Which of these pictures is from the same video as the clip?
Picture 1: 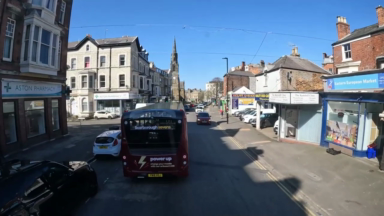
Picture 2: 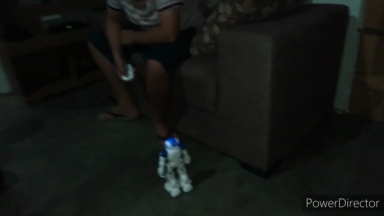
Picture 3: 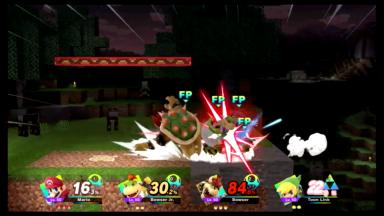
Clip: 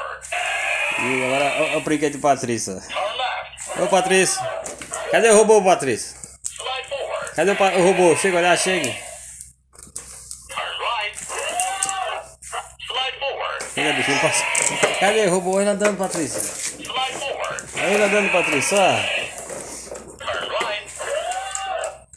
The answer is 2